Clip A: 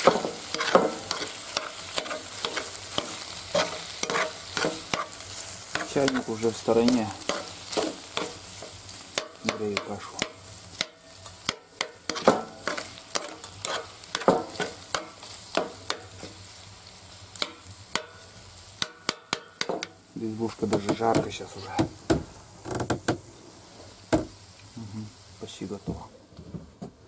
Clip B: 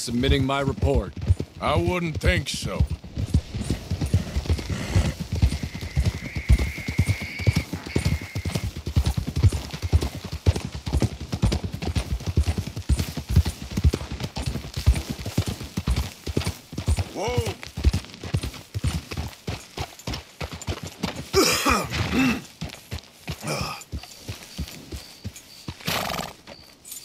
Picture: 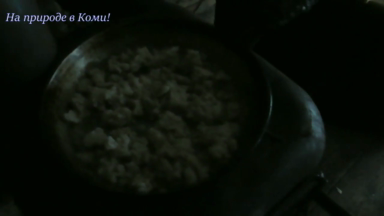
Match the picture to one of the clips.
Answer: A